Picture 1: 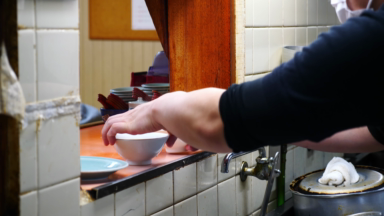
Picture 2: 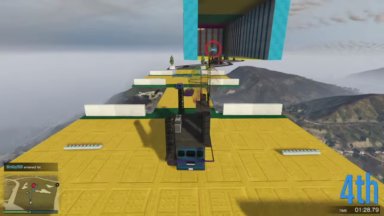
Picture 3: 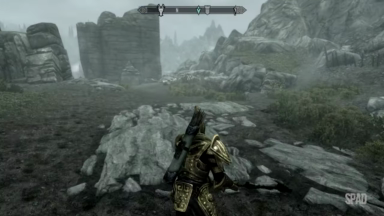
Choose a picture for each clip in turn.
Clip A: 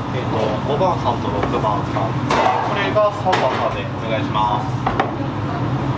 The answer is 1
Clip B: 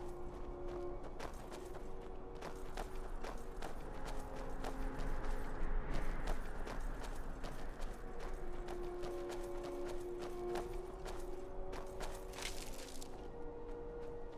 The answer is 3